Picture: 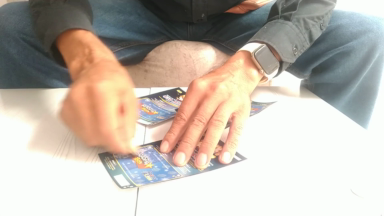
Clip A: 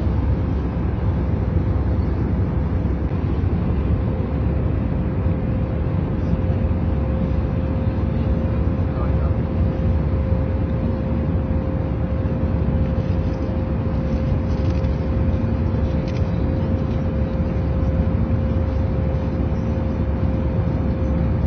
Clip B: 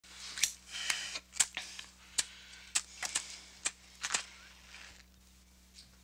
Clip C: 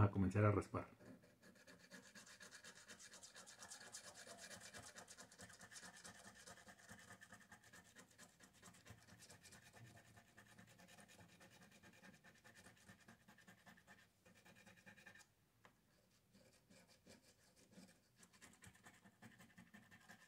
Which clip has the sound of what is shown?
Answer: C